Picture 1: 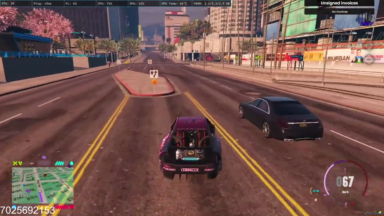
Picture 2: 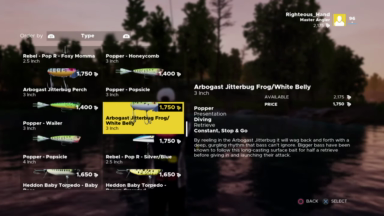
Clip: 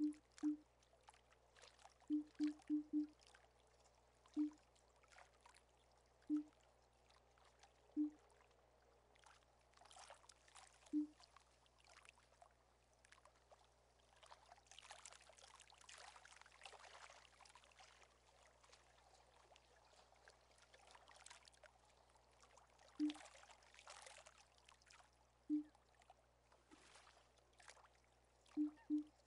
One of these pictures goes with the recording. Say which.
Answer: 2